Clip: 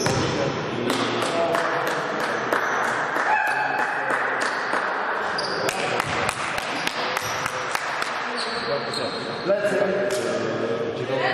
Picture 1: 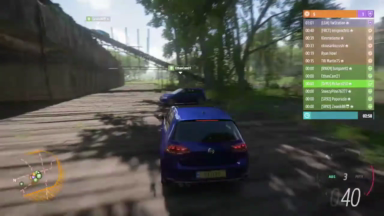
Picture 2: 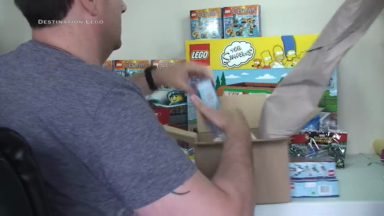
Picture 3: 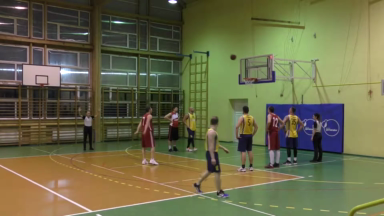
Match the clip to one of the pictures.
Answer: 3